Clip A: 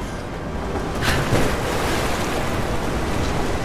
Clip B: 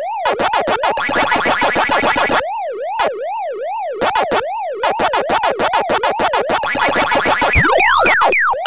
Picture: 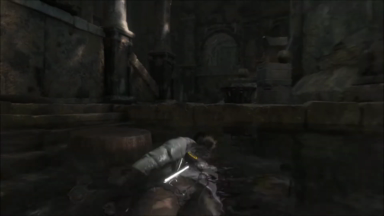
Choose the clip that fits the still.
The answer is A